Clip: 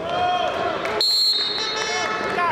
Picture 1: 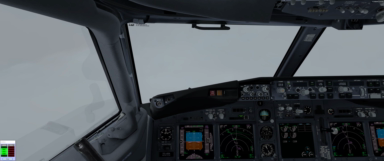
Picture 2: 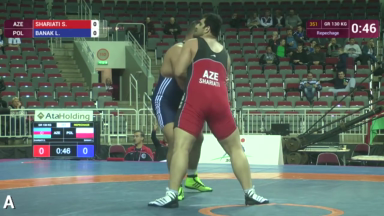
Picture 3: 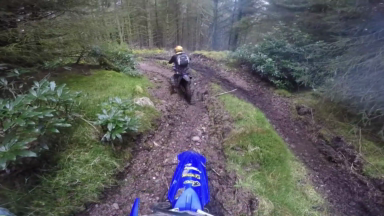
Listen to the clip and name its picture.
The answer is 2